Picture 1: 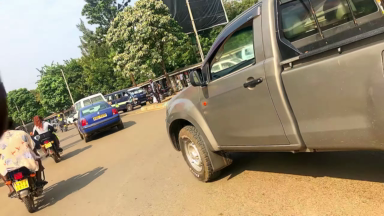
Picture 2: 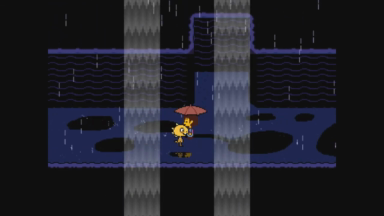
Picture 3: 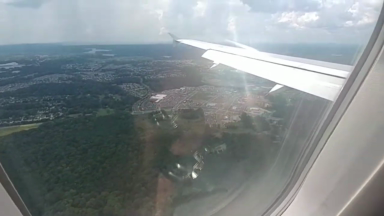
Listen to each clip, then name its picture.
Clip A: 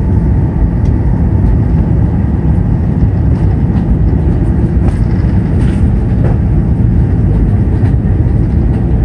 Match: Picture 3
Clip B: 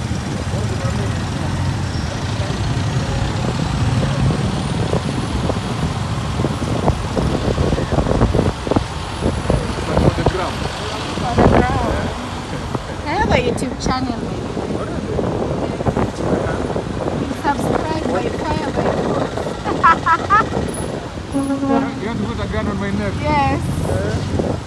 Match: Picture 1